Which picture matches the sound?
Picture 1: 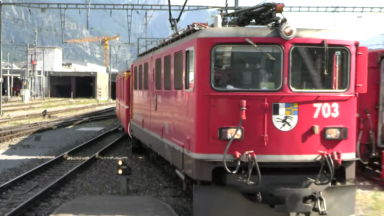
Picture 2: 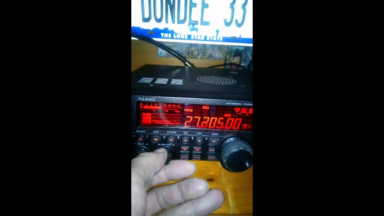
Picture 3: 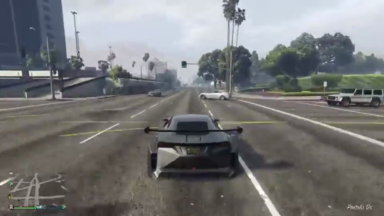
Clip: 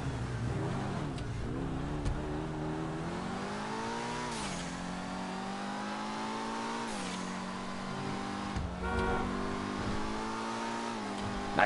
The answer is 3